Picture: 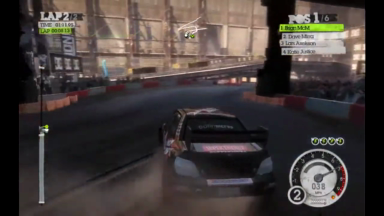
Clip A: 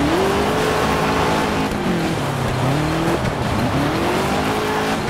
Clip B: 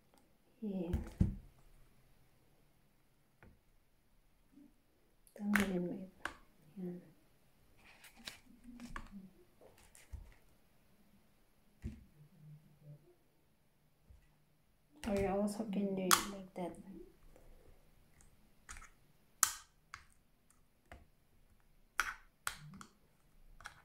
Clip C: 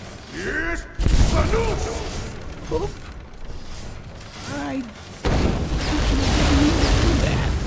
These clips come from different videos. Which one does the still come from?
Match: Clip A